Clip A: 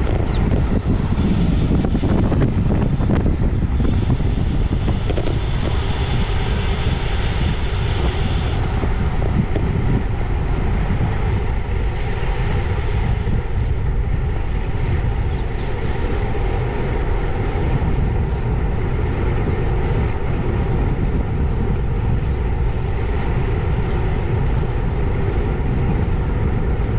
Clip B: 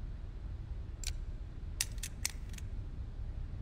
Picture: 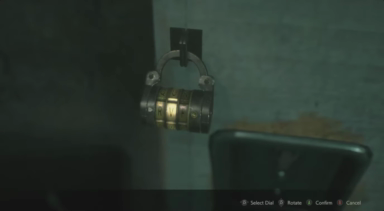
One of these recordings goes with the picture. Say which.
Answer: B